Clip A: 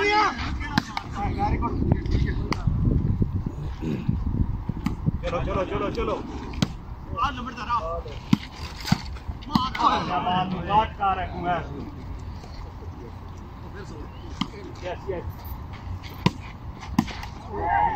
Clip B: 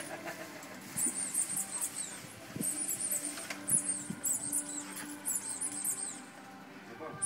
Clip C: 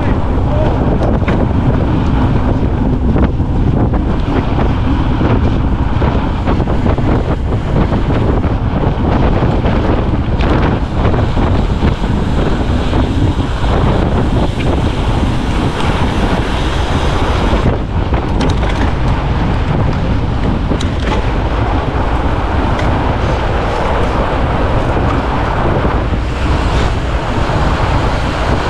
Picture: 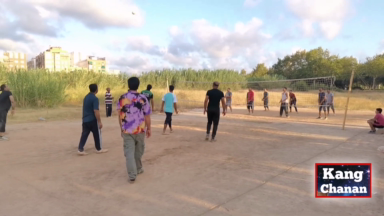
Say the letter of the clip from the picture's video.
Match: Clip A